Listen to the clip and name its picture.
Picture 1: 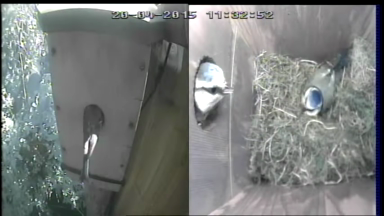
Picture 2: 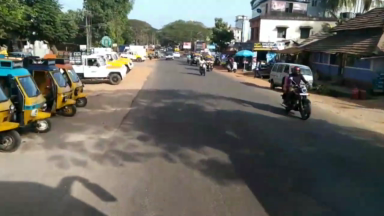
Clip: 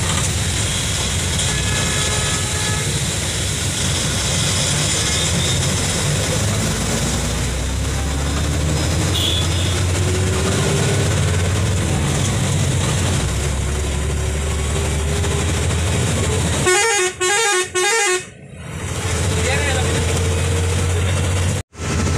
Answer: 2